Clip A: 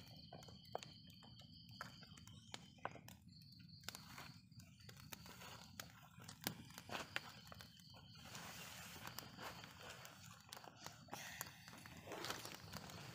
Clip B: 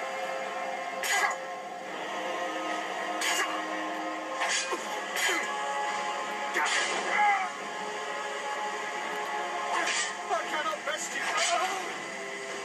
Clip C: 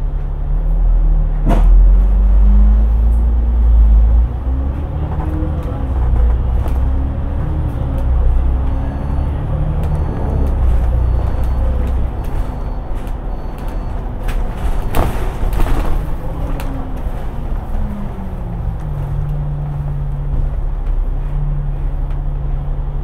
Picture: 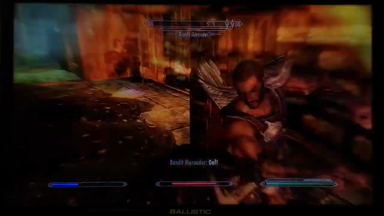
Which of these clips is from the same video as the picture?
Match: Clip B